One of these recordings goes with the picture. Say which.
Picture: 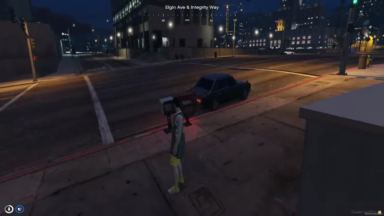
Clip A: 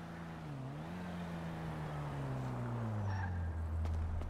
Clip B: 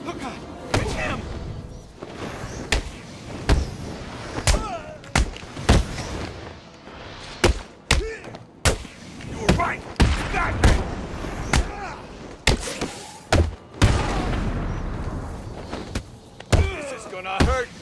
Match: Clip A